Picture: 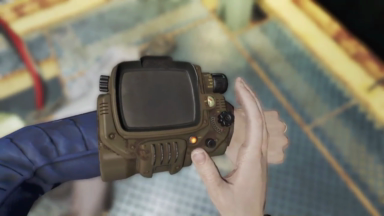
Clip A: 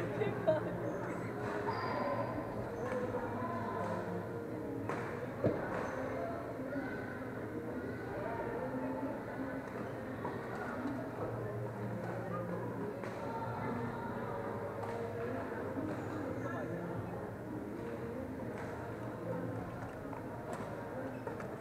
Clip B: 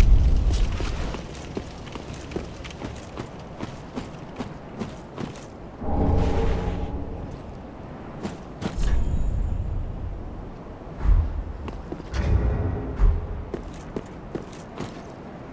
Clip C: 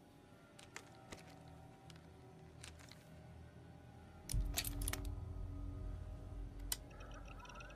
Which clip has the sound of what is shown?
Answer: C